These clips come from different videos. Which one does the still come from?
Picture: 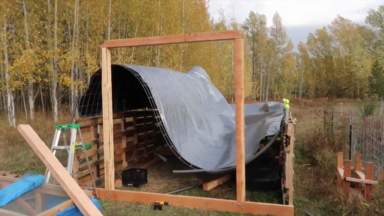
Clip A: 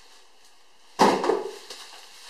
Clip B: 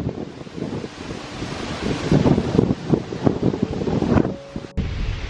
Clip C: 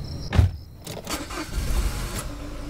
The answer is B